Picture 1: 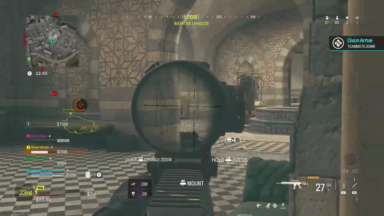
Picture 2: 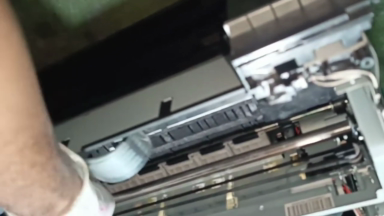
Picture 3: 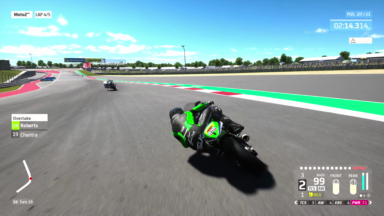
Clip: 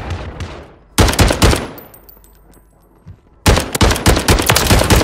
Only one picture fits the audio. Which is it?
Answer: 1